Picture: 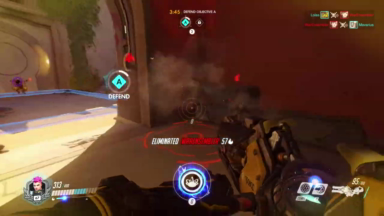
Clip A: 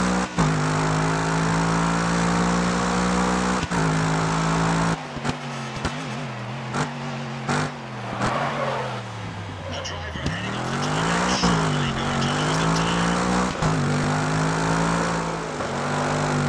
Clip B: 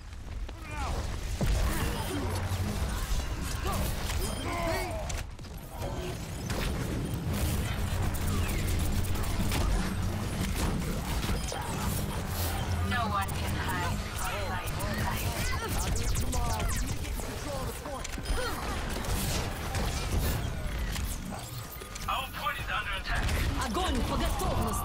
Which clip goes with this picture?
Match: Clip B